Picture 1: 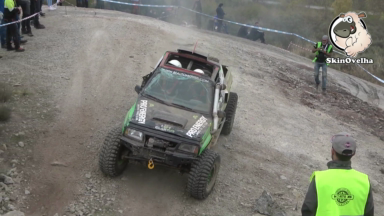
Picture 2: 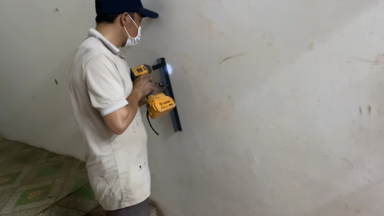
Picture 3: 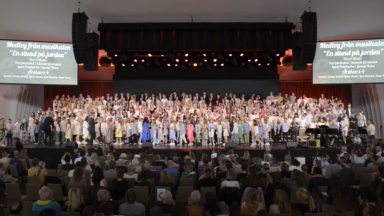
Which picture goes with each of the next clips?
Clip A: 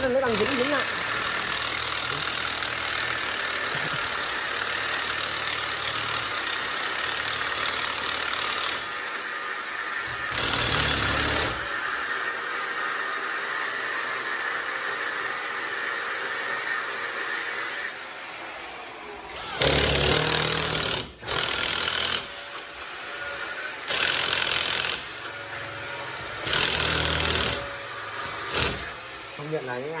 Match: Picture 2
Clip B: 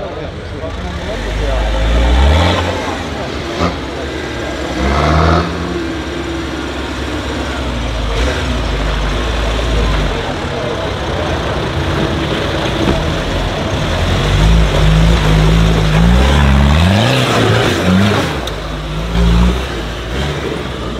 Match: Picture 1